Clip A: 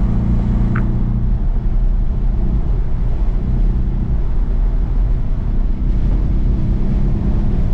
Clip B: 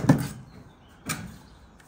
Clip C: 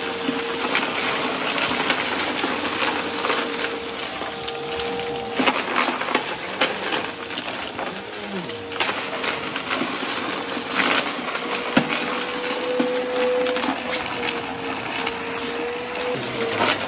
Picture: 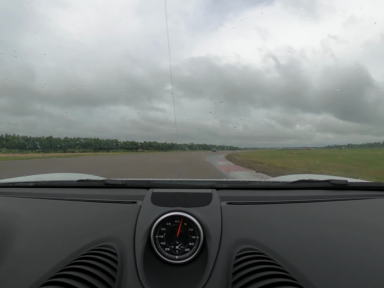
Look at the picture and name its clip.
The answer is A